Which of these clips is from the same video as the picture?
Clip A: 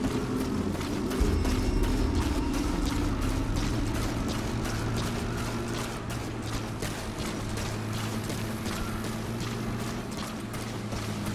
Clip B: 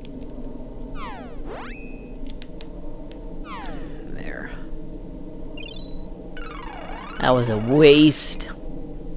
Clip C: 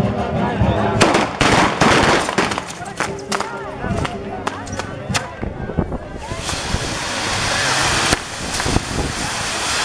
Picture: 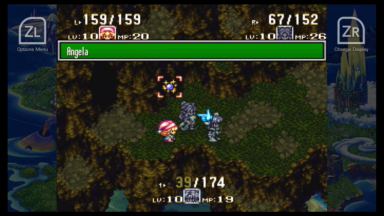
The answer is B